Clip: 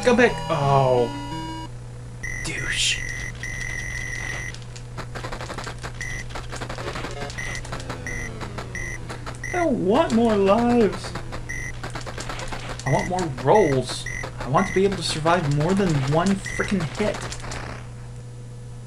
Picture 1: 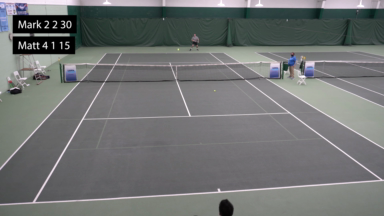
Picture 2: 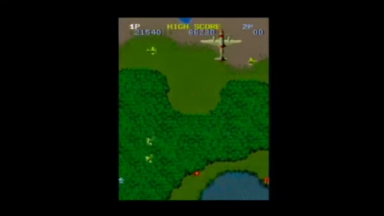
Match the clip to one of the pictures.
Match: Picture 2